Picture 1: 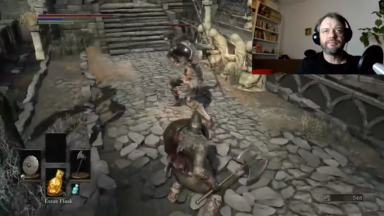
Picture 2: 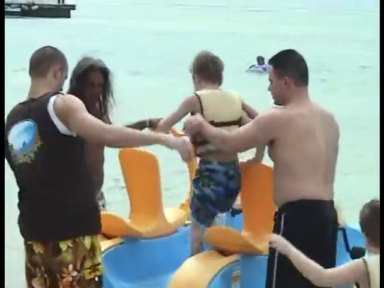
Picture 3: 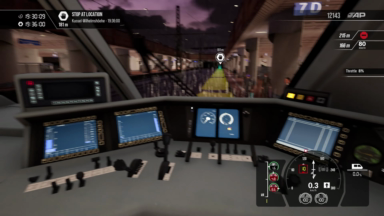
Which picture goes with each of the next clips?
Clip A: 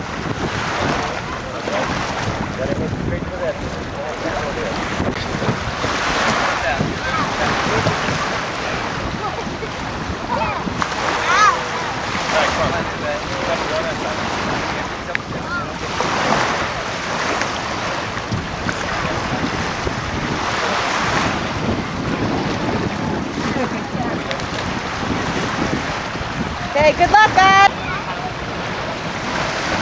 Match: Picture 2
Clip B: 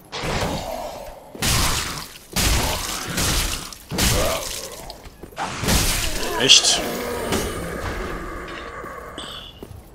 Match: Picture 1